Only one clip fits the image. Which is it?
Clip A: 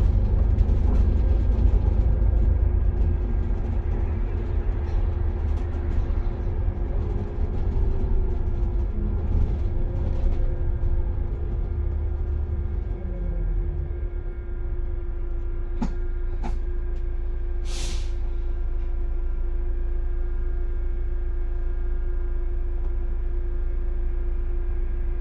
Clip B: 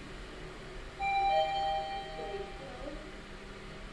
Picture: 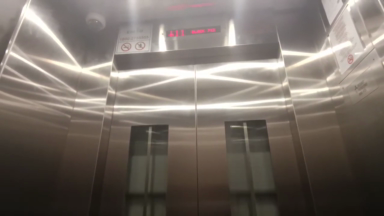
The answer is B